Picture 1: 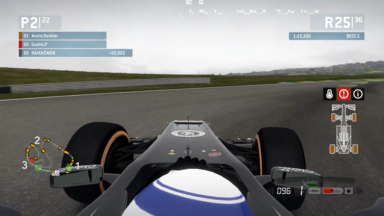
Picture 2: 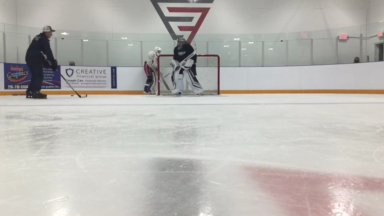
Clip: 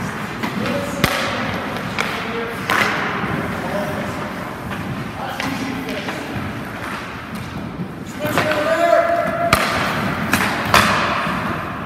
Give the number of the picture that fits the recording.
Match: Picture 2